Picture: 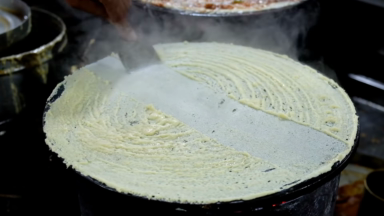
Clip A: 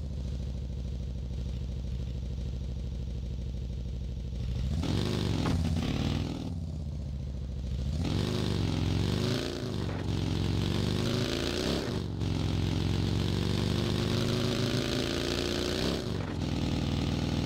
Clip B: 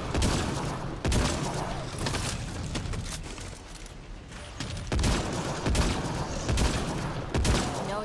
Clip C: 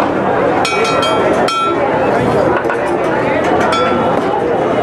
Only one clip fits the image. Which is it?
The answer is C